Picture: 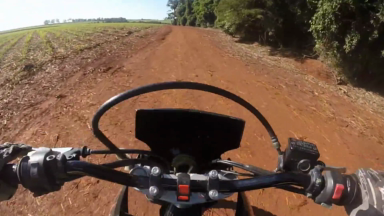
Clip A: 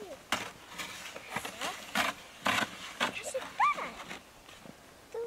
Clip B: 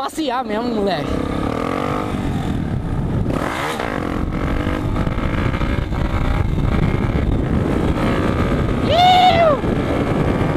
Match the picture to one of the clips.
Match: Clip B